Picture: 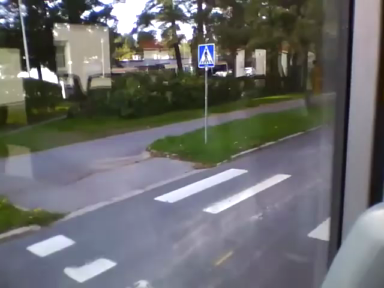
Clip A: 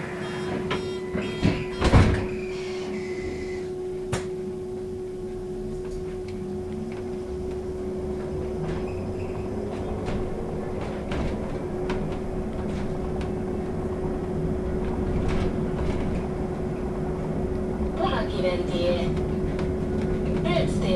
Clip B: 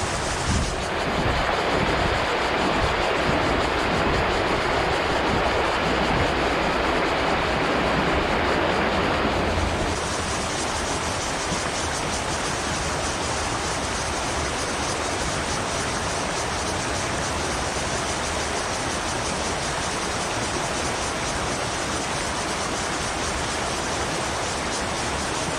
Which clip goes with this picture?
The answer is A